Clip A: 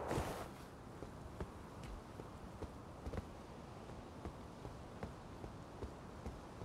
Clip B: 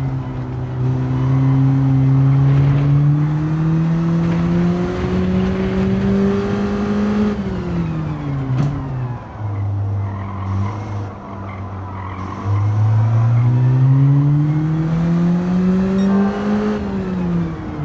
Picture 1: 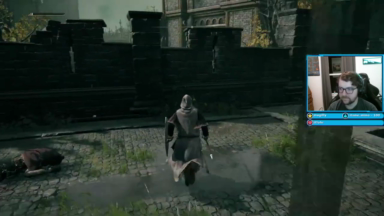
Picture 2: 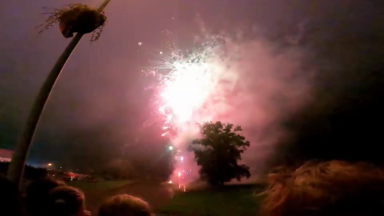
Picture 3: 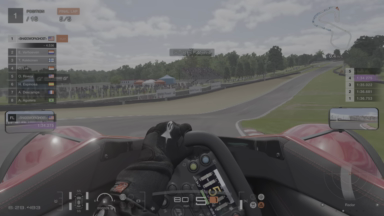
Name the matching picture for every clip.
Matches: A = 1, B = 3